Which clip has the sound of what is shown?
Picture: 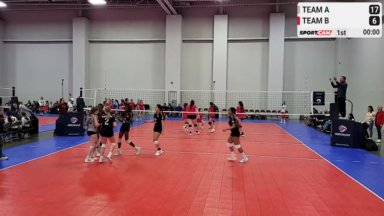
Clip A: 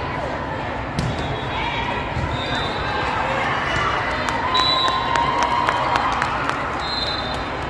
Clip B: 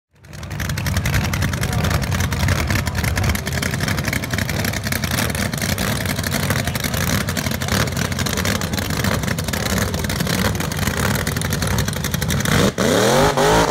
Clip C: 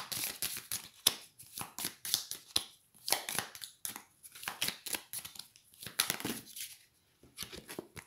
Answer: A